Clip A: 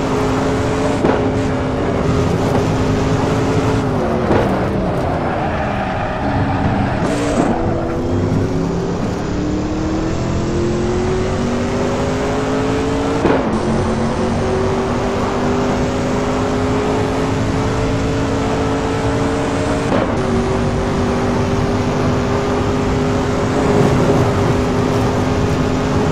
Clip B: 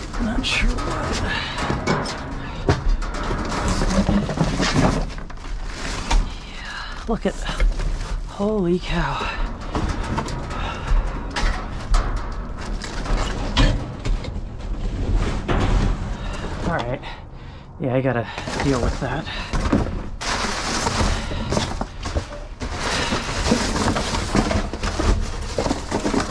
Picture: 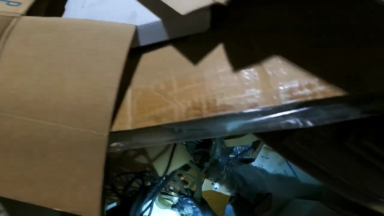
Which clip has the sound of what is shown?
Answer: B